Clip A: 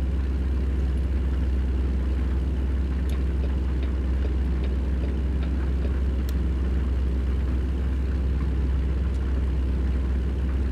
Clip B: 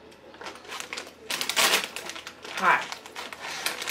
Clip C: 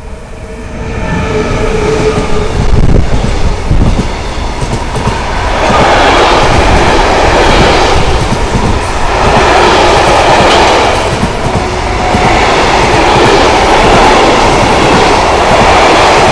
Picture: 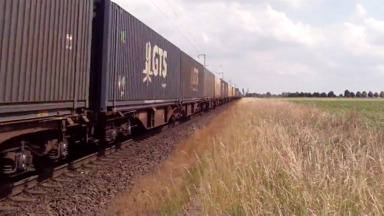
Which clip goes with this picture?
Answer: C